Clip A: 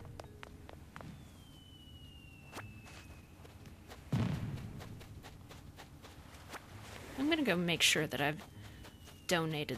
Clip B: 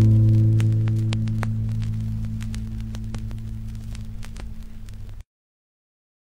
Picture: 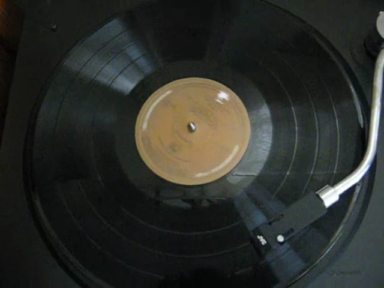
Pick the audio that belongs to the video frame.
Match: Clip B